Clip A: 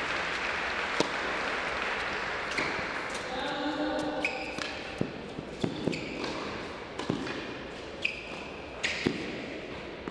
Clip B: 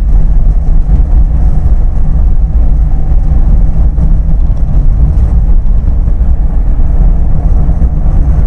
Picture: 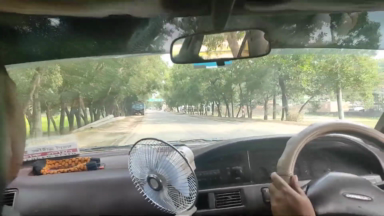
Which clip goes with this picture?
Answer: B